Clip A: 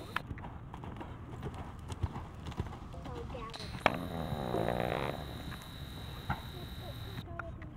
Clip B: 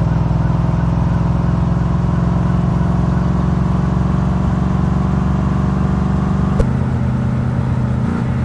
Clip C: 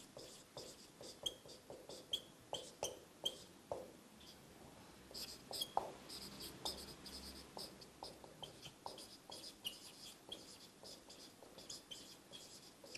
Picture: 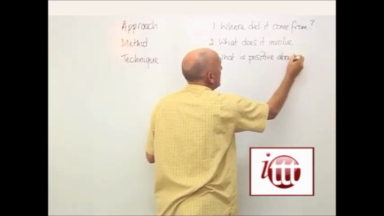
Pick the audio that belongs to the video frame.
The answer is C